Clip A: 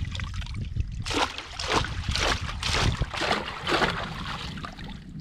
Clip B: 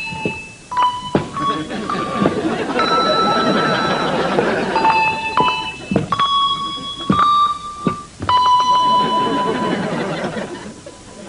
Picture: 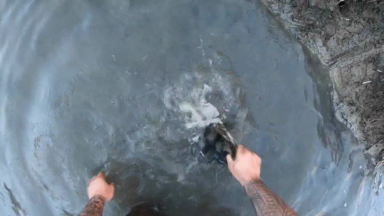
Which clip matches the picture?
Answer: A